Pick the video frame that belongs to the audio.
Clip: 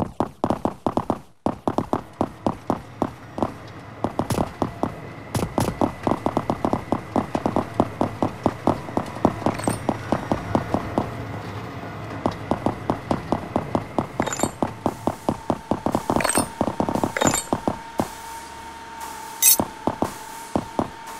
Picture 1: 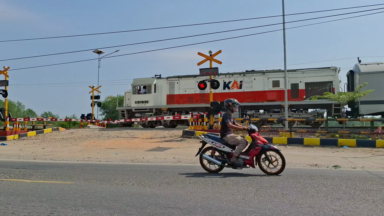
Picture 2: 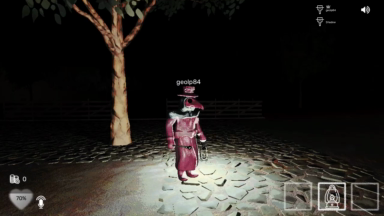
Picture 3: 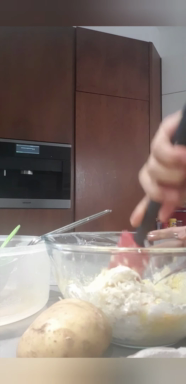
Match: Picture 2